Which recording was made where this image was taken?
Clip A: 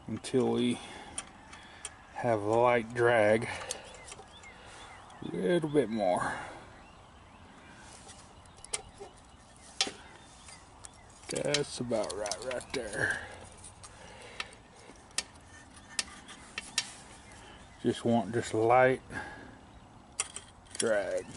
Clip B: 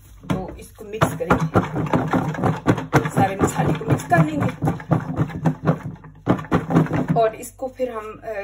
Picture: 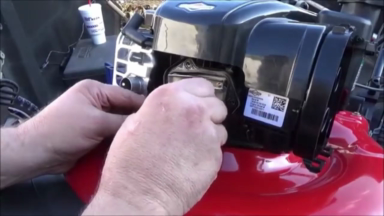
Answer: A